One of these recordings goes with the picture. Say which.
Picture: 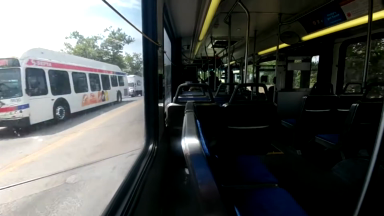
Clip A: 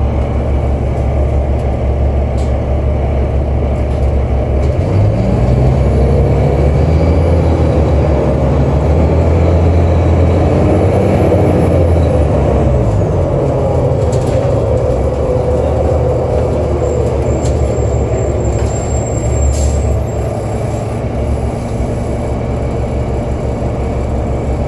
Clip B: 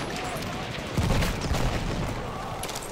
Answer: A